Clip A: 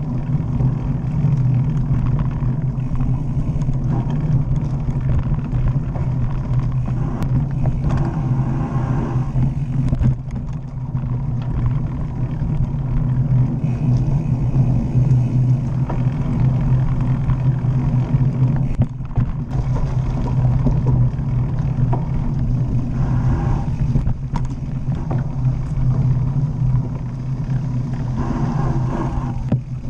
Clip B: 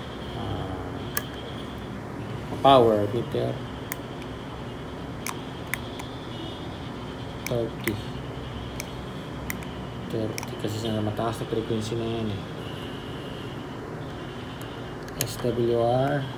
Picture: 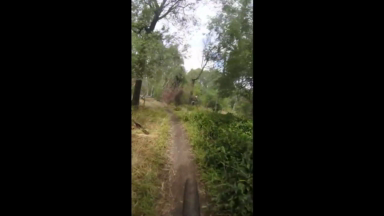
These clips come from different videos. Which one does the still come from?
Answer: A